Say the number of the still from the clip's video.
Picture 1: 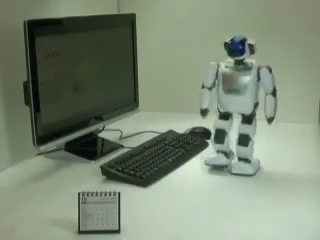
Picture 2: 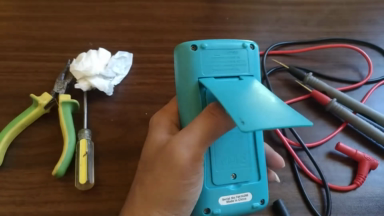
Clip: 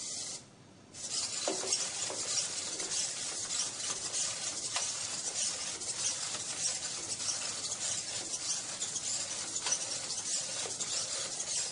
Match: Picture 1